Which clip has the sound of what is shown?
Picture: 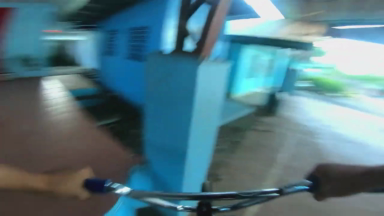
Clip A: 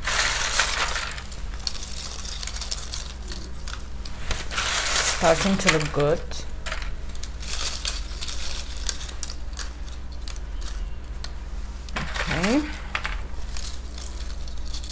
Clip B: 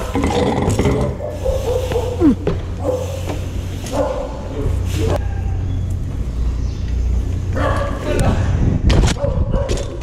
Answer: B